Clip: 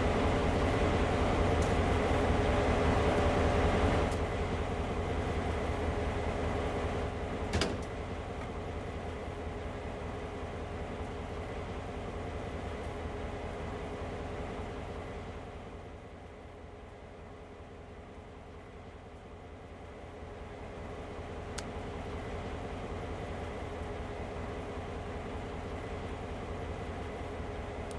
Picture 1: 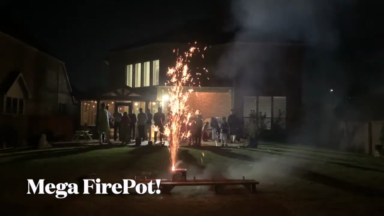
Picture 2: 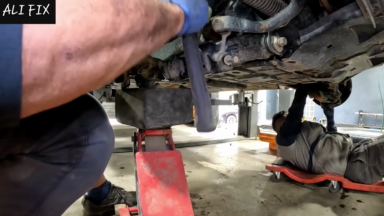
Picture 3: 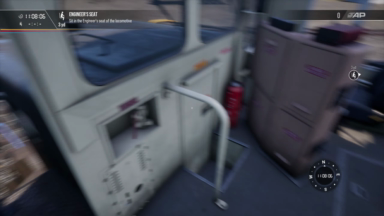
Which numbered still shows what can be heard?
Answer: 3